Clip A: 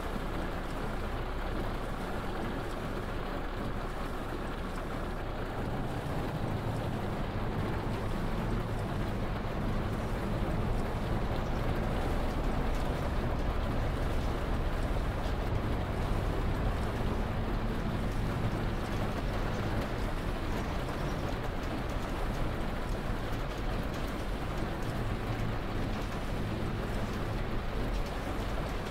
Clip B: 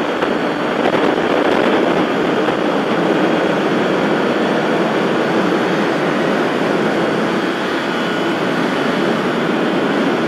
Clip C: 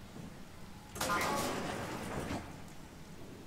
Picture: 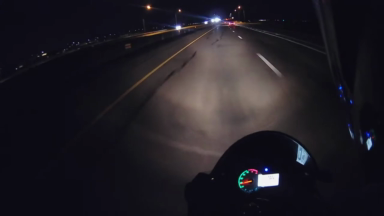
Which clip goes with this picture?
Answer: B